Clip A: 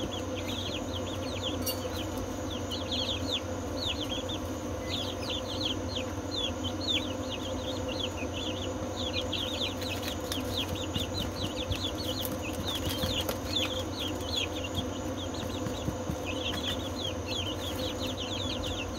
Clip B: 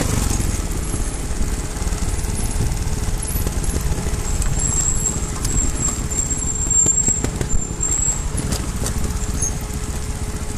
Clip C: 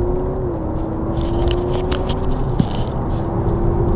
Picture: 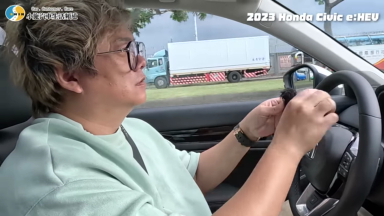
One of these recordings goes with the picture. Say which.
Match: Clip C